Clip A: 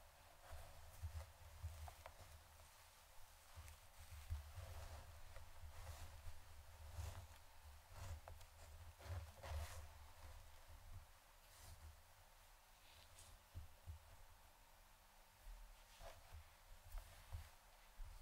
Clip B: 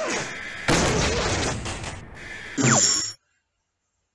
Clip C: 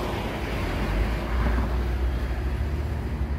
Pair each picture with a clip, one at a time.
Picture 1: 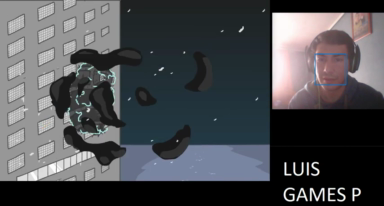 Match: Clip B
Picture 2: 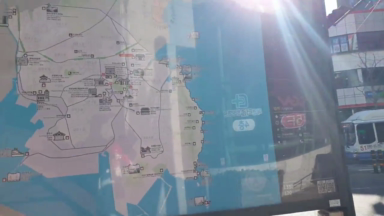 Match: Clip C